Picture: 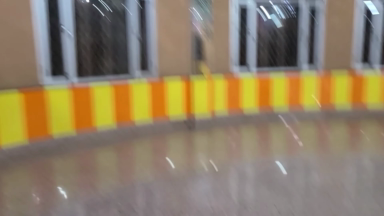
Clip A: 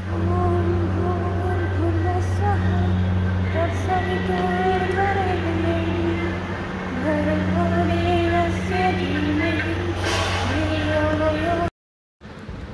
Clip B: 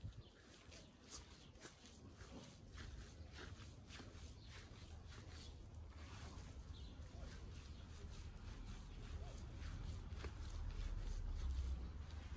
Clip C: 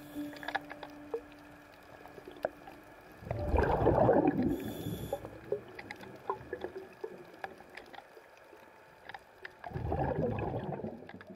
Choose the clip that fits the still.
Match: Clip A